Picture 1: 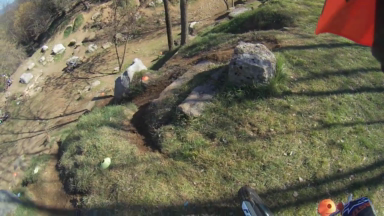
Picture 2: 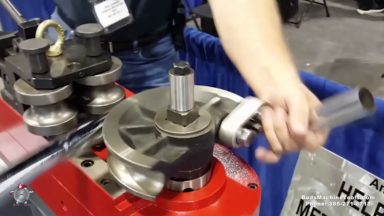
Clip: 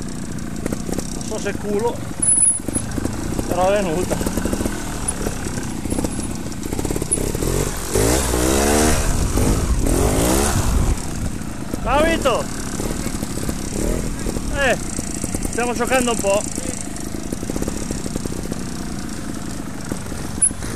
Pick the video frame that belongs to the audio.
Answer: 1